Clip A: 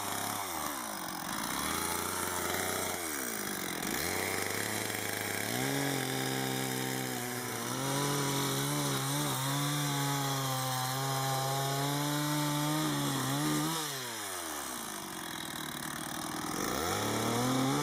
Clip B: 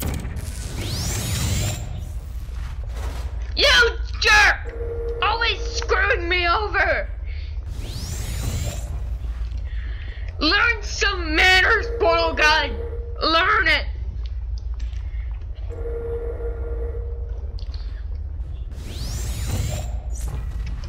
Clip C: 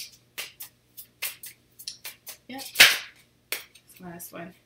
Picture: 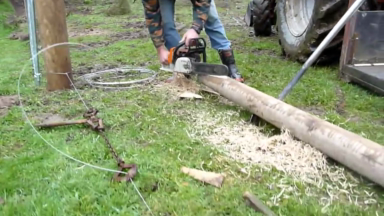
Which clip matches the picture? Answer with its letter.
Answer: A